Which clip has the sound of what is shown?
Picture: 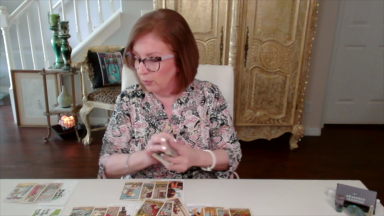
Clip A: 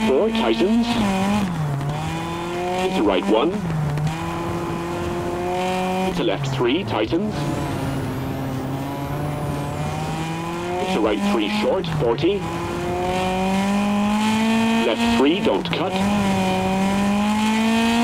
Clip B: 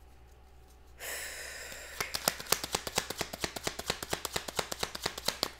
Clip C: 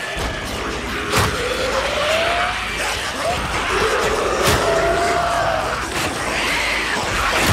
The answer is B